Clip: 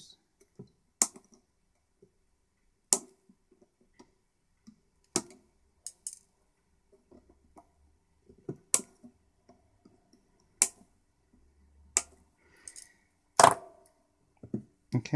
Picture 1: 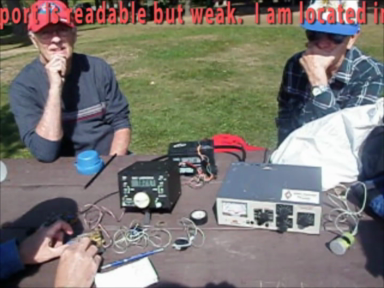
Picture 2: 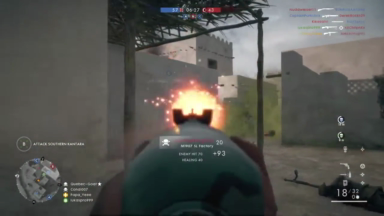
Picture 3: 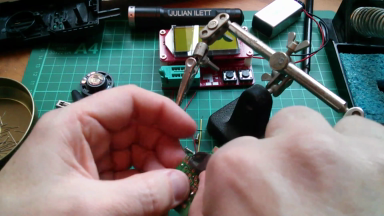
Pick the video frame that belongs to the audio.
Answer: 3